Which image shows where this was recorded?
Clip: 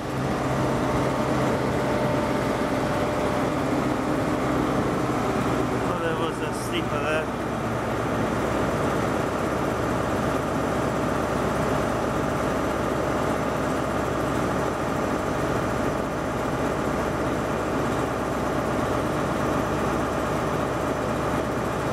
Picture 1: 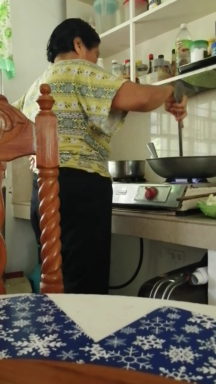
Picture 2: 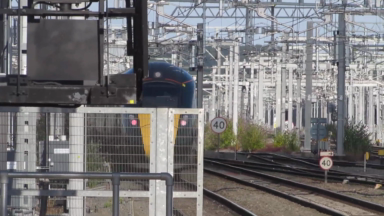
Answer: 2